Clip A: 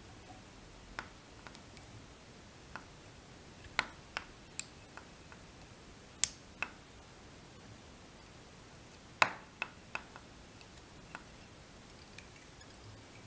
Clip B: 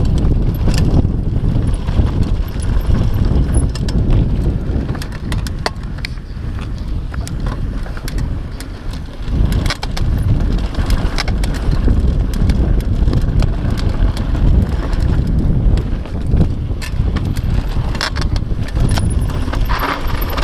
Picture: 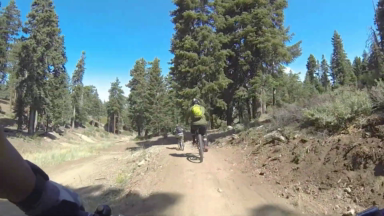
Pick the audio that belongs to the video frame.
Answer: B